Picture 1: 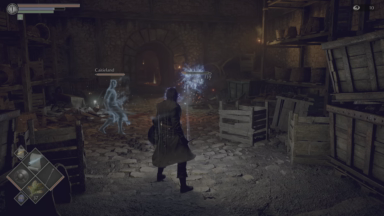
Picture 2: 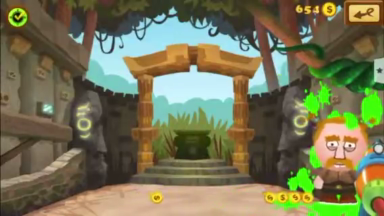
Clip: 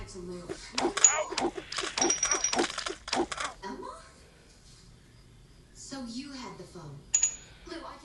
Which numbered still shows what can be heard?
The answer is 2